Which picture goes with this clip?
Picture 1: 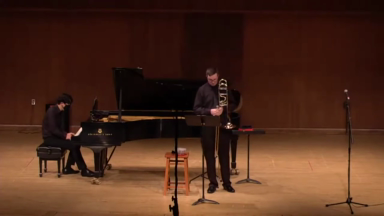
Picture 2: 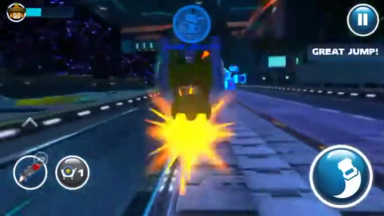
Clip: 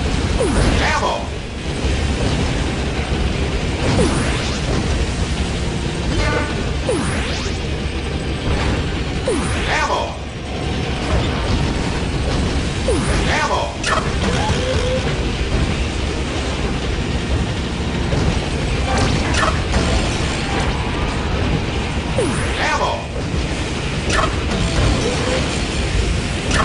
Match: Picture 2